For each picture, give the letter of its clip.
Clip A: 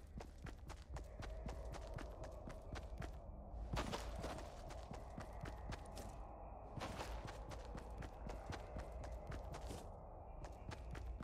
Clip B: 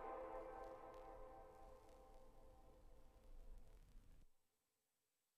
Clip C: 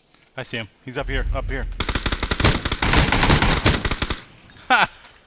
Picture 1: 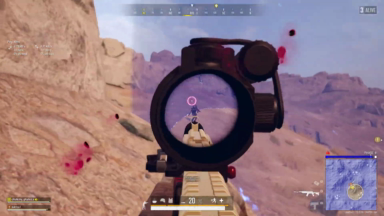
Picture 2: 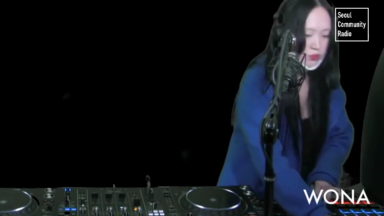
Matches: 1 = C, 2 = B